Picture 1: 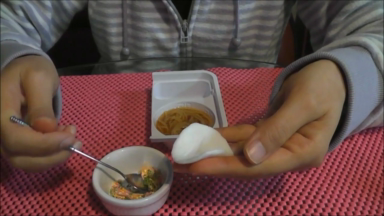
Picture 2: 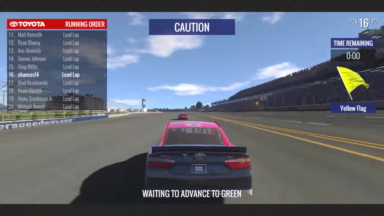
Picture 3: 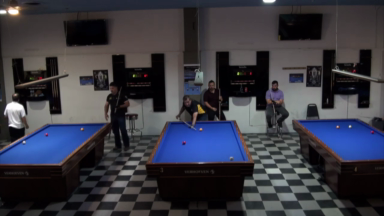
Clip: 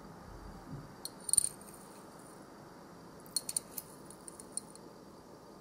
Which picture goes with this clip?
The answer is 1